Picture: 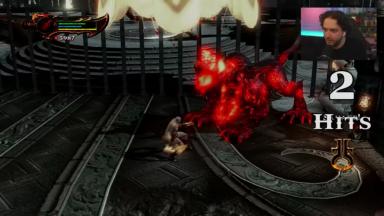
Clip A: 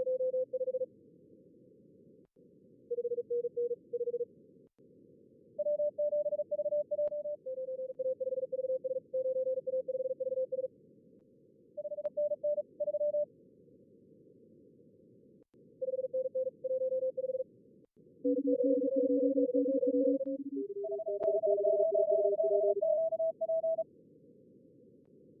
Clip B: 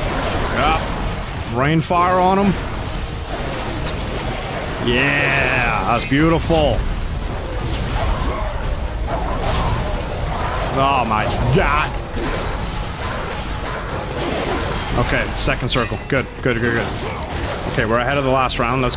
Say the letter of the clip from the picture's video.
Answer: B